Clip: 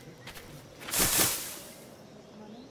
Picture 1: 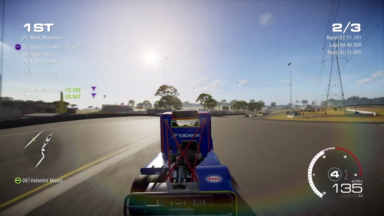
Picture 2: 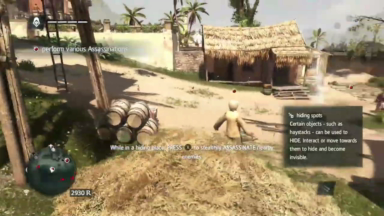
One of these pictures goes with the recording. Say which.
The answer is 2